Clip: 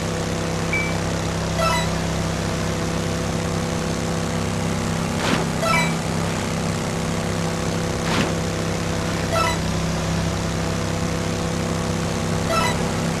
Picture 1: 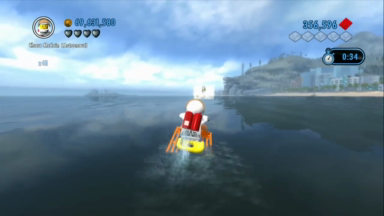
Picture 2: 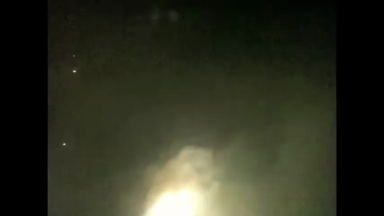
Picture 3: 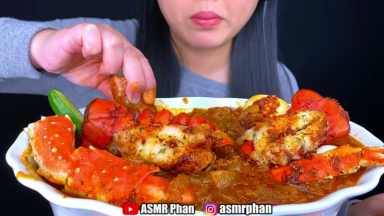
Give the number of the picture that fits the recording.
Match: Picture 1